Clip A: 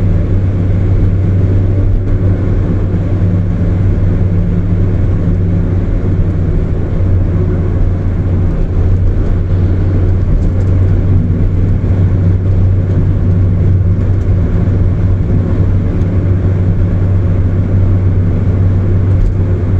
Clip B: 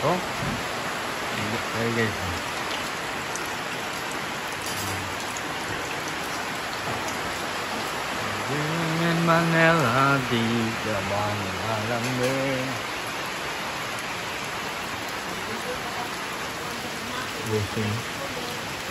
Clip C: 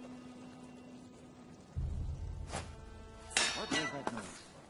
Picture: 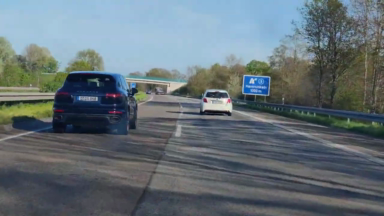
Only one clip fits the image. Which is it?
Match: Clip A